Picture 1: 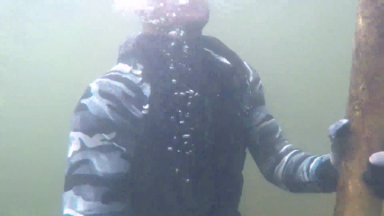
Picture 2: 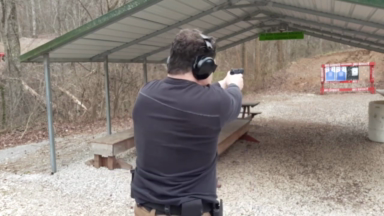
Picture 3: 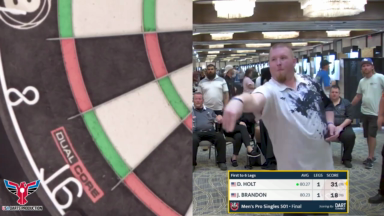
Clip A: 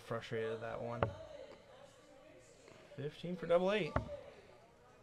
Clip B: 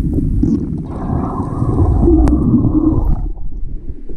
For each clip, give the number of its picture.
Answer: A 3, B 1